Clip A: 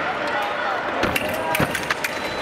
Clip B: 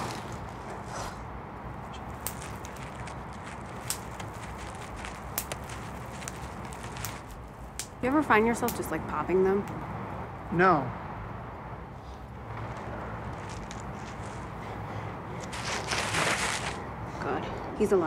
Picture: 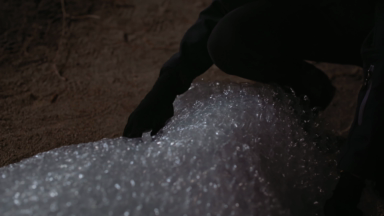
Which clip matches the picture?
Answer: B